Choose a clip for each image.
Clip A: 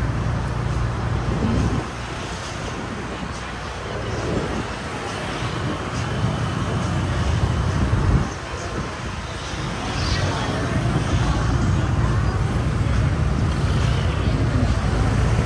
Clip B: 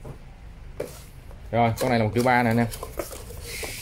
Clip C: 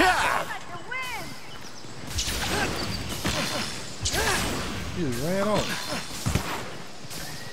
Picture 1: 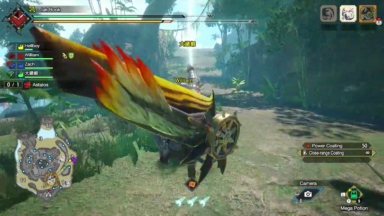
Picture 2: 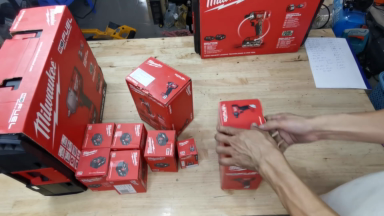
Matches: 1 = C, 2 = B